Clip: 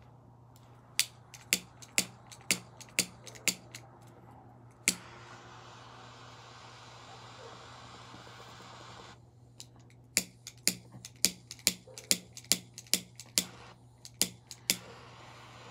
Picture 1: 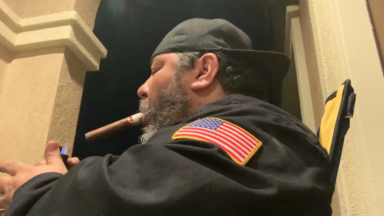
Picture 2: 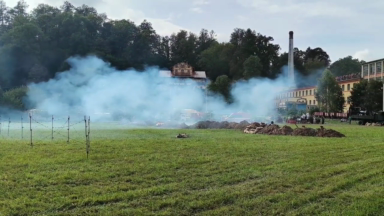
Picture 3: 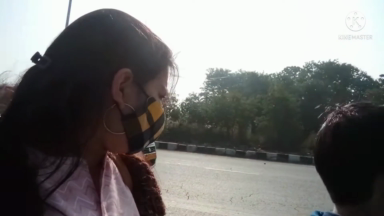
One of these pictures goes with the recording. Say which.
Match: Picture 1